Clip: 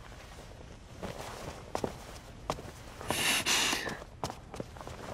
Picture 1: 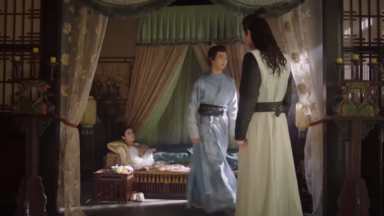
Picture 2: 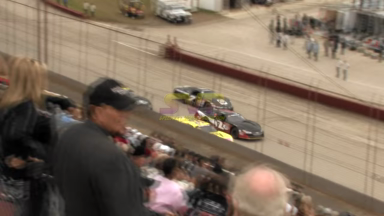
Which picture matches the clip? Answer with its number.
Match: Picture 1